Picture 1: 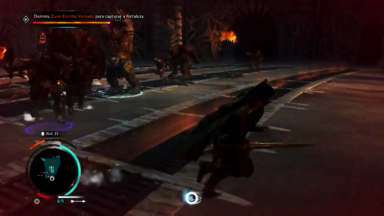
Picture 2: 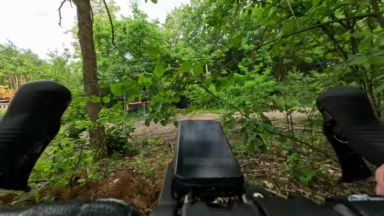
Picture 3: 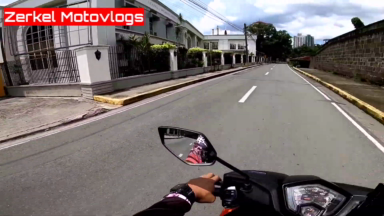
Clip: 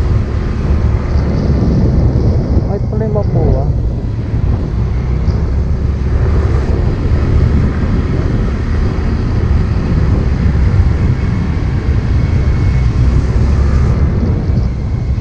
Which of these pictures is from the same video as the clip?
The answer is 3